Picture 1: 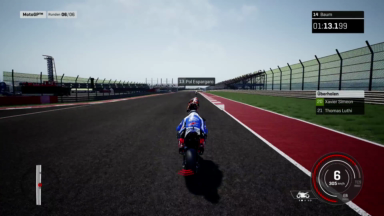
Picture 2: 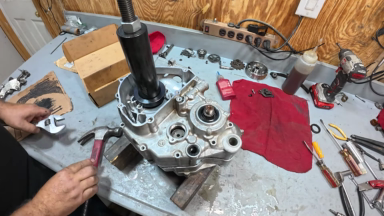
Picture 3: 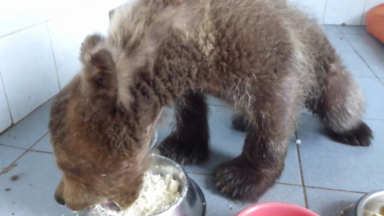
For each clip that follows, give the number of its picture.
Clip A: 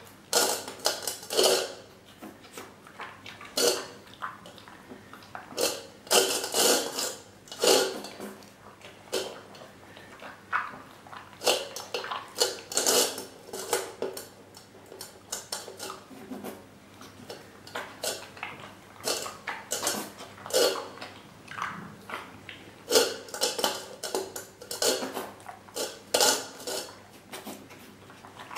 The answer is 3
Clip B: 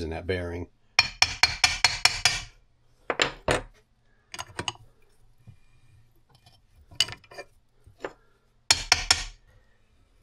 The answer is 2